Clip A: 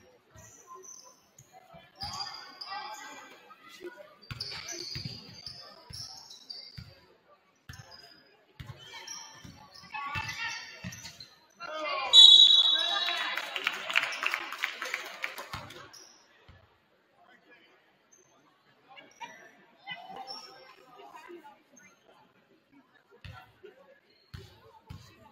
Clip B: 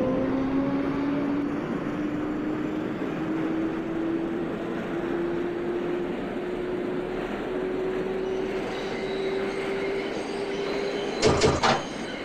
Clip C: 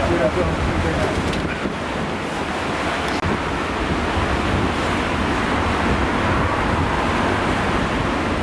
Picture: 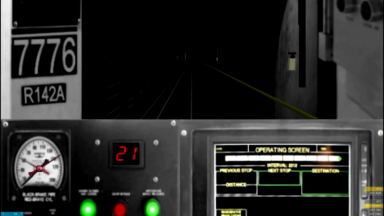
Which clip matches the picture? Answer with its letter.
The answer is B